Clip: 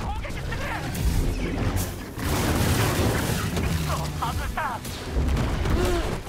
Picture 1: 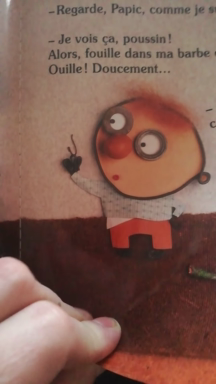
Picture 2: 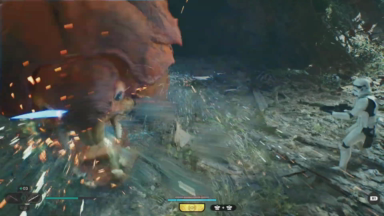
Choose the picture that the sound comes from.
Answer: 2